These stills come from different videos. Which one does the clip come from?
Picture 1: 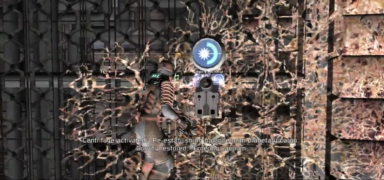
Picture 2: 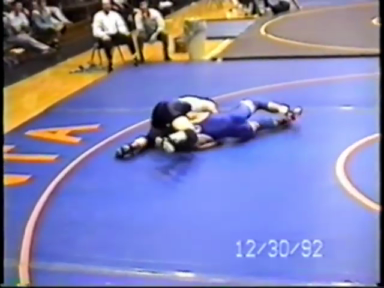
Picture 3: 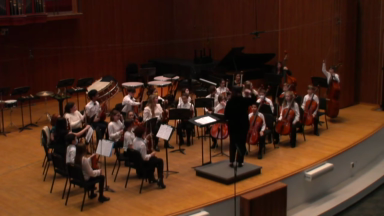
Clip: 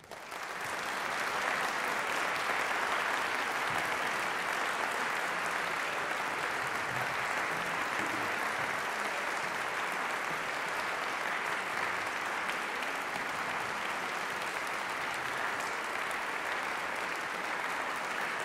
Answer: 3